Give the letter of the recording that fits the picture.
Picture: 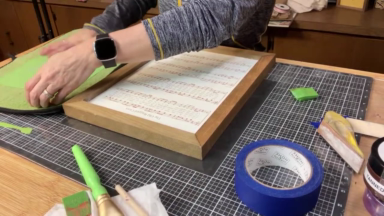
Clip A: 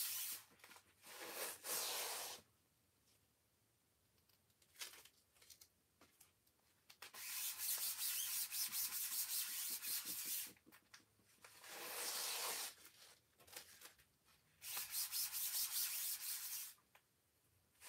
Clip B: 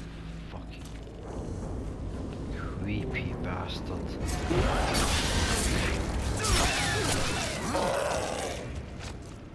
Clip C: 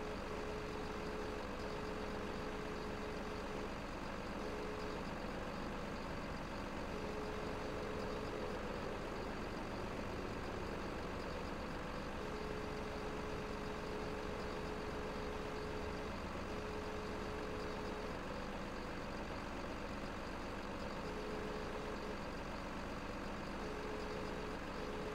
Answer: A